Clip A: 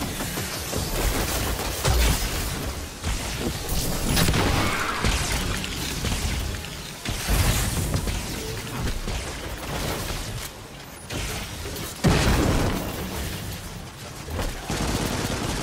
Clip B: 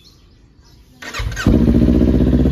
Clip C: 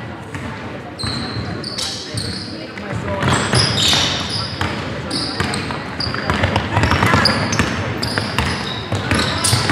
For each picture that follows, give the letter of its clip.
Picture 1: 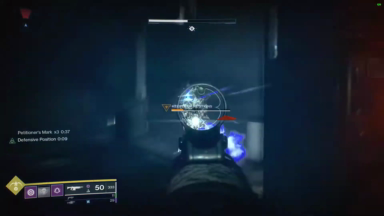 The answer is A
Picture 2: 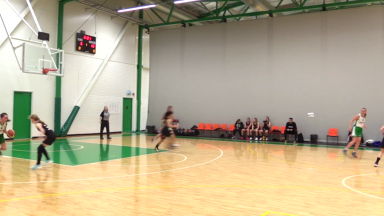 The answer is C